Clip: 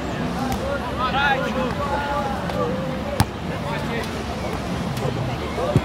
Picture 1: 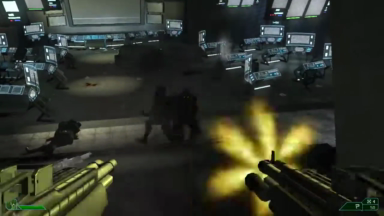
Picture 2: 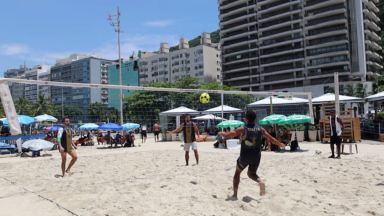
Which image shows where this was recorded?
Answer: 2